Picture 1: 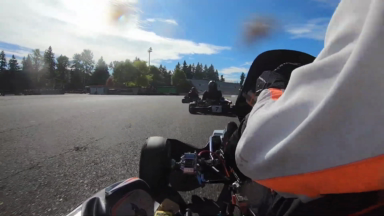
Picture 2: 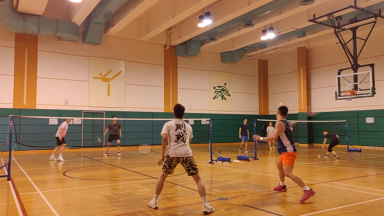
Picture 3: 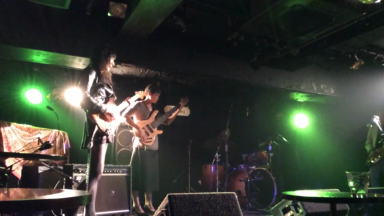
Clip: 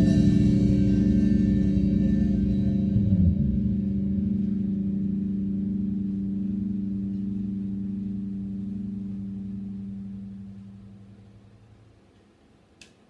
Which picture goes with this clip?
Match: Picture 3